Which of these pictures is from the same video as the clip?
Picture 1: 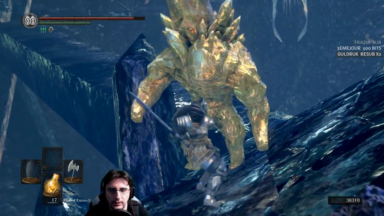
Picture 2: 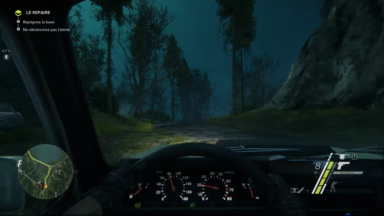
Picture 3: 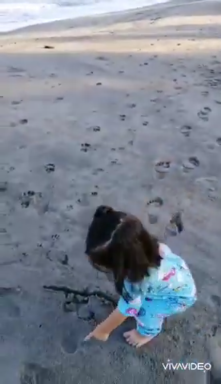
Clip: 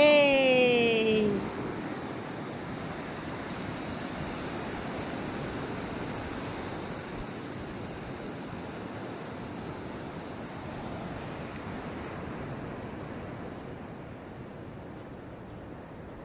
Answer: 3